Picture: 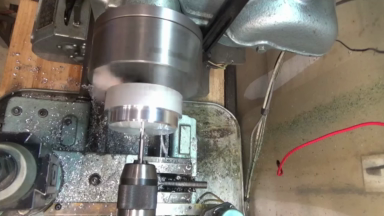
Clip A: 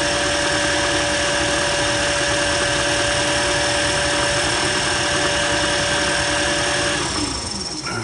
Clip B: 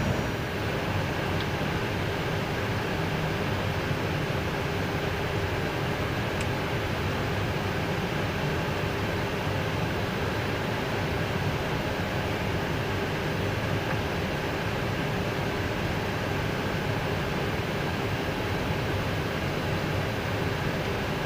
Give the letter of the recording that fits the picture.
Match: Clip A